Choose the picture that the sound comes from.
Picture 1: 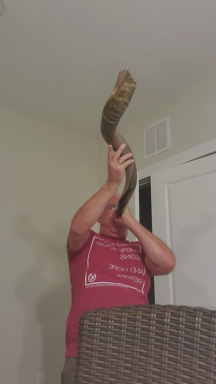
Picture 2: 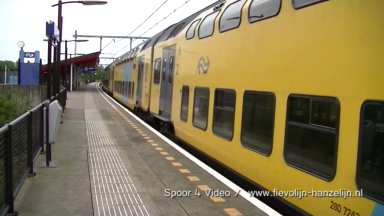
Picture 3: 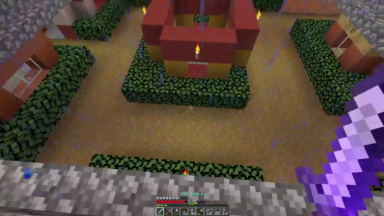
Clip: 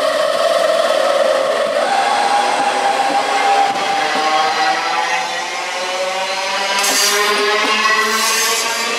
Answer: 2